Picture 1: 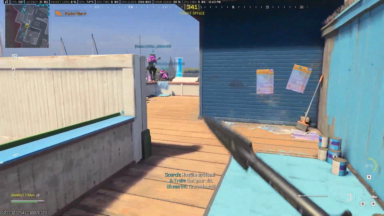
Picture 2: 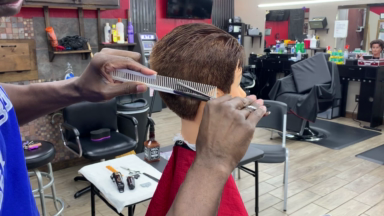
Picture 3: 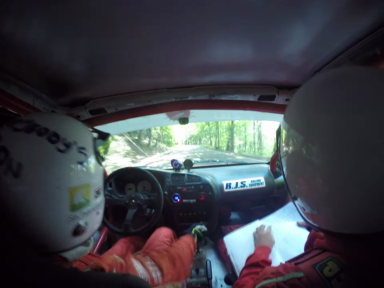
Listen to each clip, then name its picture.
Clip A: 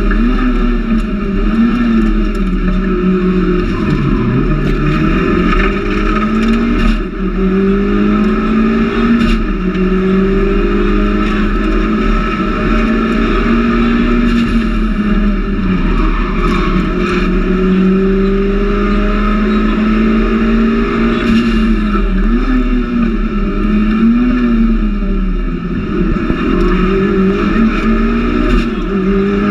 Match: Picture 3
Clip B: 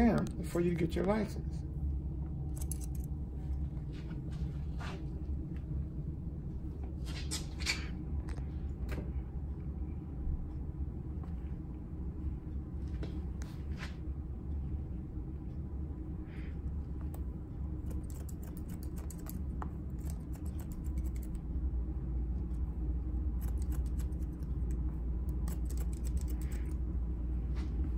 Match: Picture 2